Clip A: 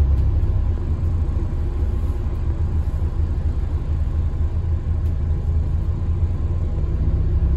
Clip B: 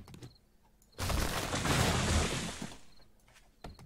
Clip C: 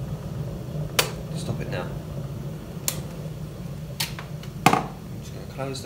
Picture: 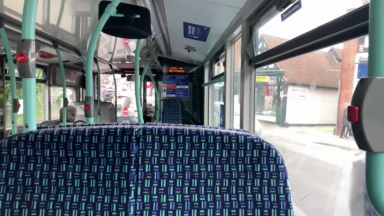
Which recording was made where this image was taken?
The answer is A